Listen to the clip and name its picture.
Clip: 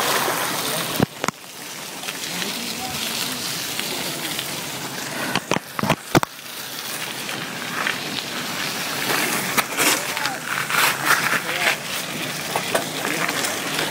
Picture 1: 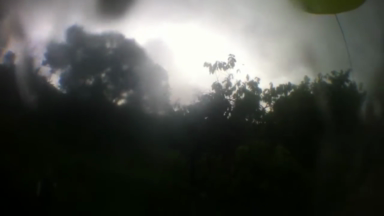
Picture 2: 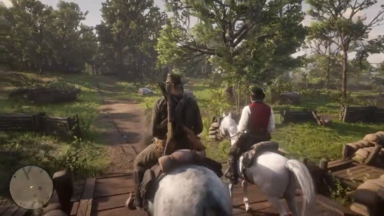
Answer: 1